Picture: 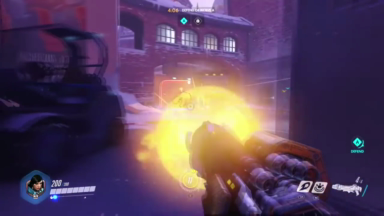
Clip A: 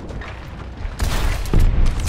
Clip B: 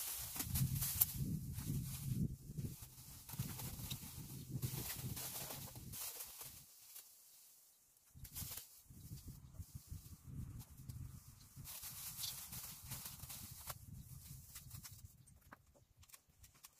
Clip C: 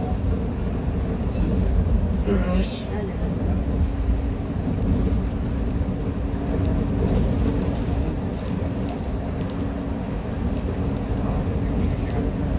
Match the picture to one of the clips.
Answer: A